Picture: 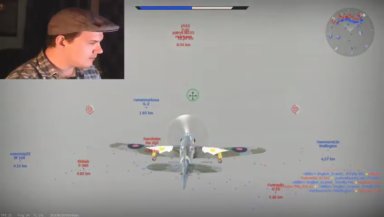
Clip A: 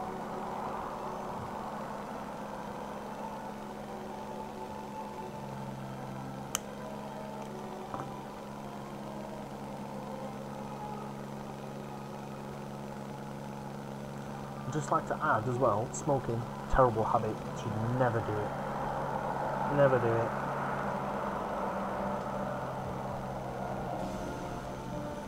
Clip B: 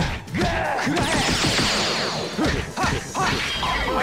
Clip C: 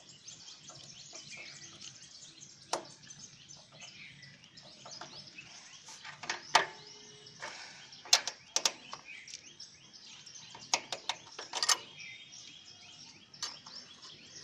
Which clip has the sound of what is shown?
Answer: A